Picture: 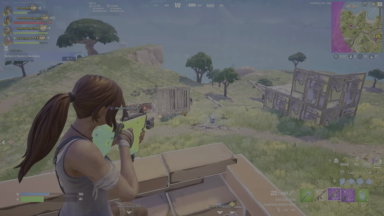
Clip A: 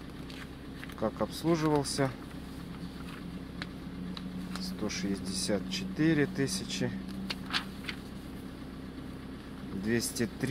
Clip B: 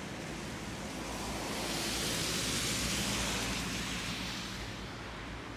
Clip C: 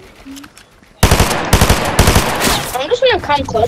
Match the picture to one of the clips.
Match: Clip C